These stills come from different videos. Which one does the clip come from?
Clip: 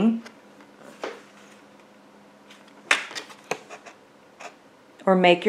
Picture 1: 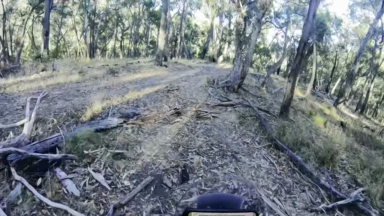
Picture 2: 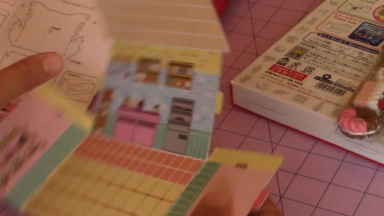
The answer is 2